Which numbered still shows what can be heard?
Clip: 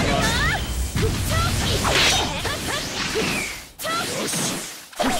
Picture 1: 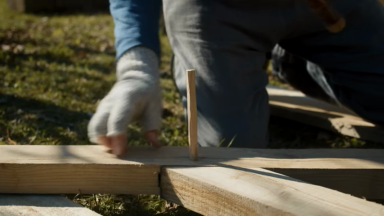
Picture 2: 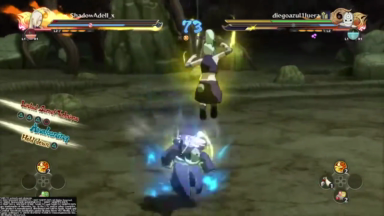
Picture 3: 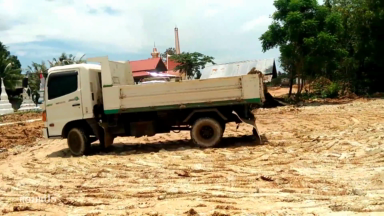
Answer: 2